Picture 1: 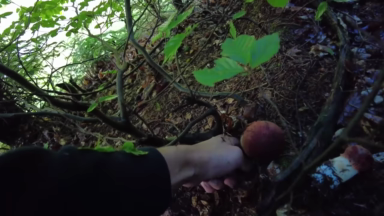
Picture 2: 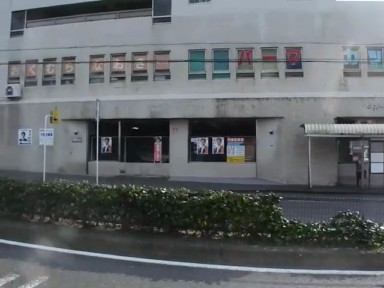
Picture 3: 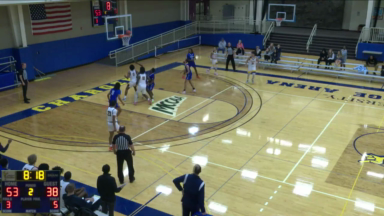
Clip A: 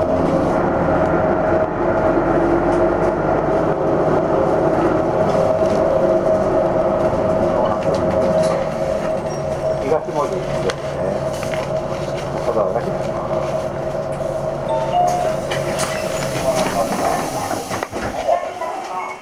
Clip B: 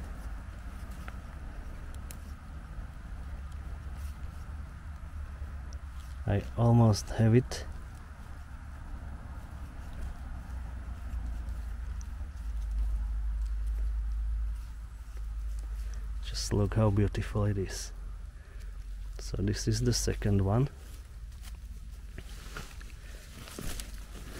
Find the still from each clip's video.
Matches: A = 2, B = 1